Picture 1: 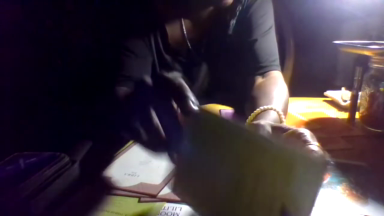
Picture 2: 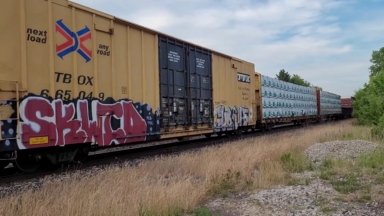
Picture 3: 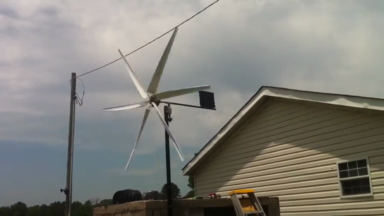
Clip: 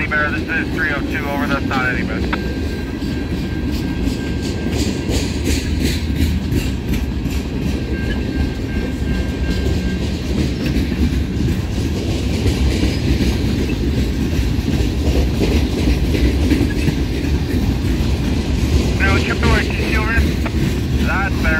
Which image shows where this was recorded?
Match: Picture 2